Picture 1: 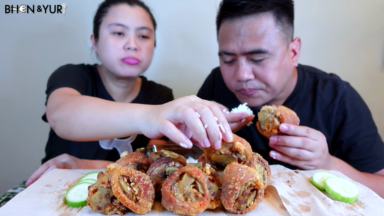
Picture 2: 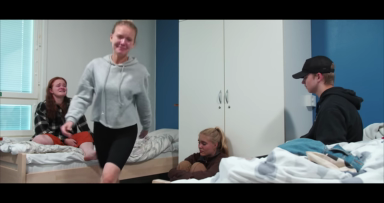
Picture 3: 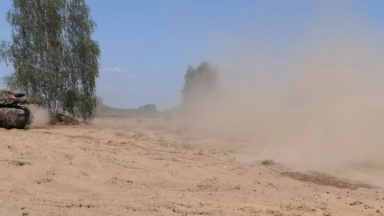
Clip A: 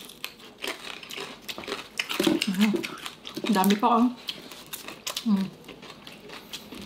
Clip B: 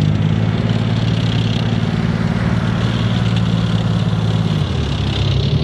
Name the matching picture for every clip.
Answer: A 1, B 3